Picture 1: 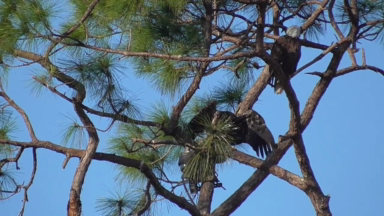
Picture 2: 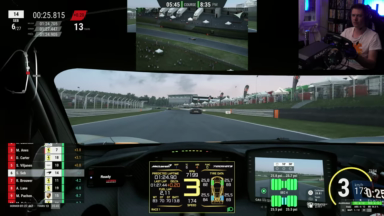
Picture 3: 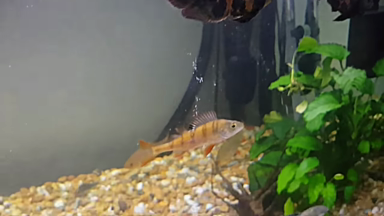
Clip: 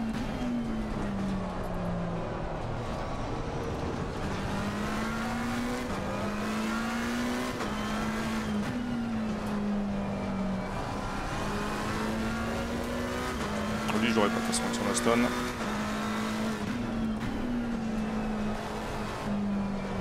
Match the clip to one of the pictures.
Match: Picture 2